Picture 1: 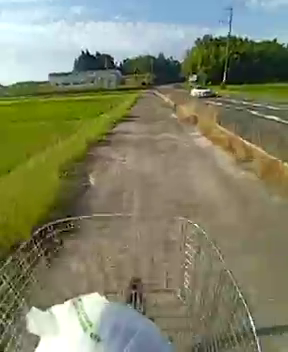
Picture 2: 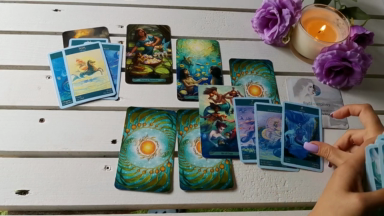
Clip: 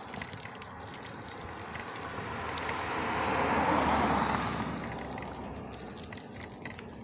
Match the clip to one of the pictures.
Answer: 1